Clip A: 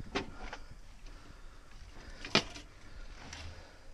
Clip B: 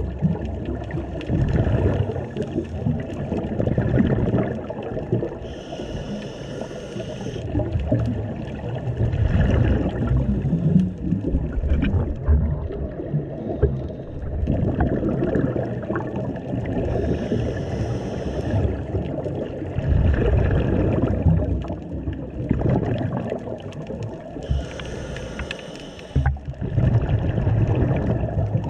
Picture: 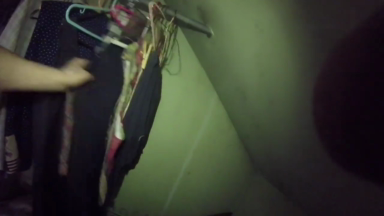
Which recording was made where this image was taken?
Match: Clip A